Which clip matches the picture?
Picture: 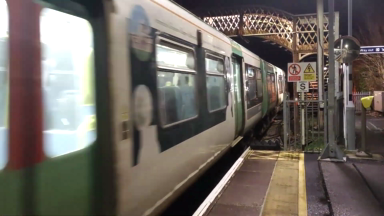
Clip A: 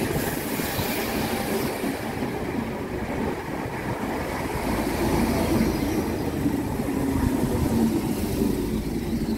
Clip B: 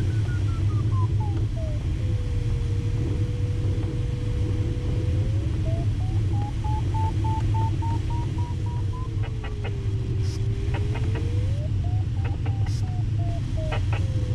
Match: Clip A